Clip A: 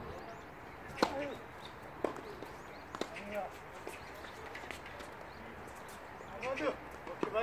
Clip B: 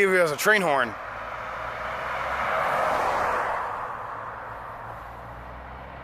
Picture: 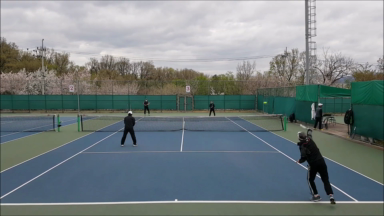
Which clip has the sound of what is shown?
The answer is A